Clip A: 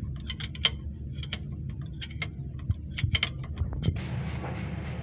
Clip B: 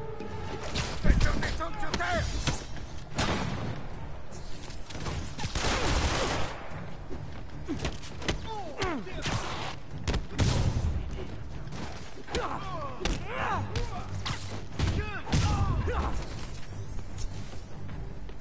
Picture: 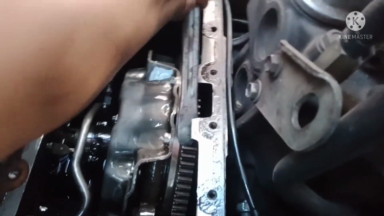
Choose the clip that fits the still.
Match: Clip A